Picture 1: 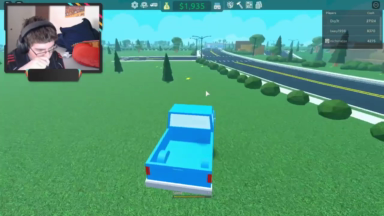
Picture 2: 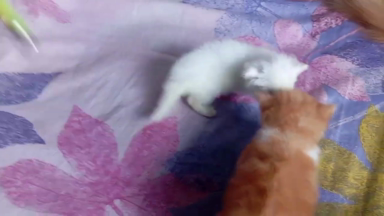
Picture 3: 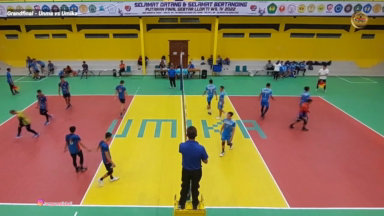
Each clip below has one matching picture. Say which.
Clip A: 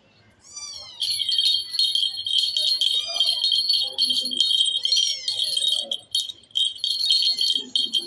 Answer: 2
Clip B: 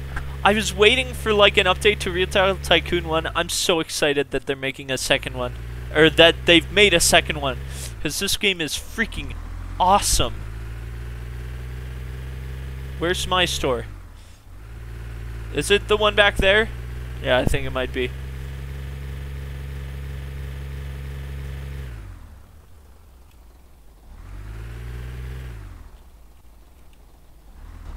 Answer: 1